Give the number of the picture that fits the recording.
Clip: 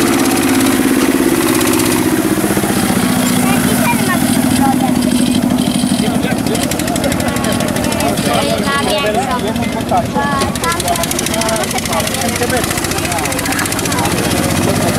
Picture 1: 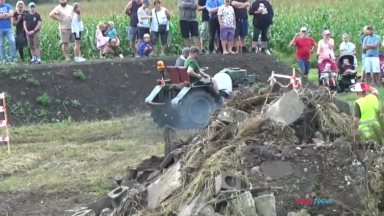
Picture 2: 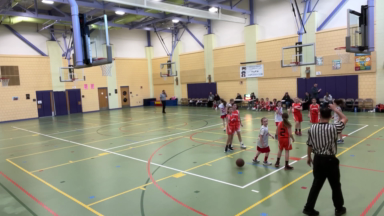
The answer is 1